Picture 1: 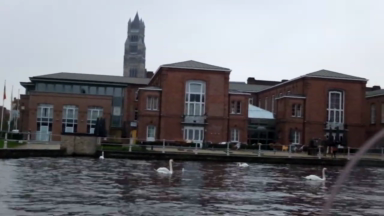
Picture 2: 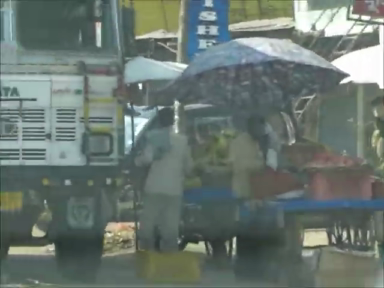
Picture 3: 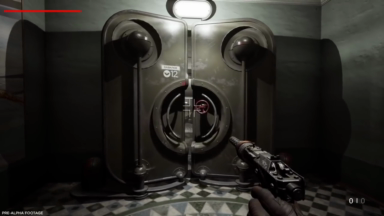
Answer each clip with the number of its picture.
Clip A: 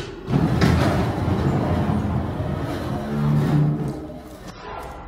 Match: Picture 3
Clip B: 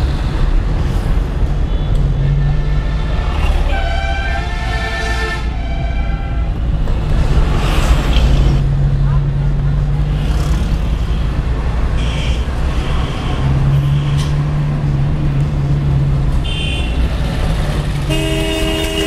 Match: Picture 2